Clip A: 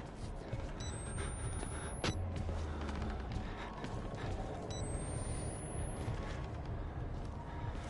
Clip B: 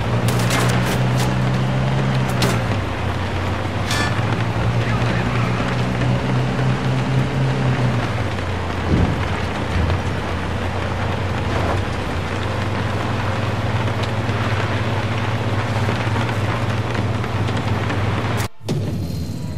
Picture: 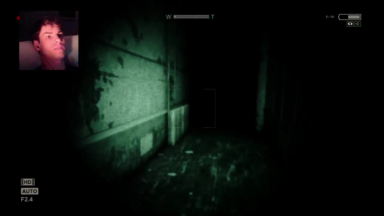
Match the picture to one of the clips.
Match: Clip A